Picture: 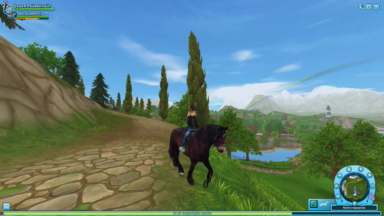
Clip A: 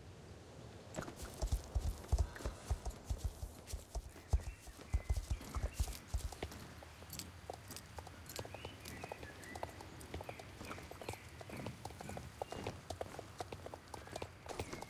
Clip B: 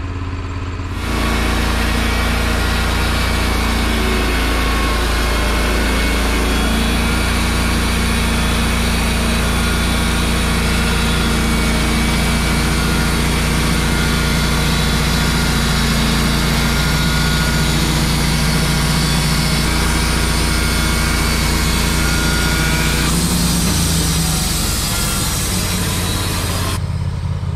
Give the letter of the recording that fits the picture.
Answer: A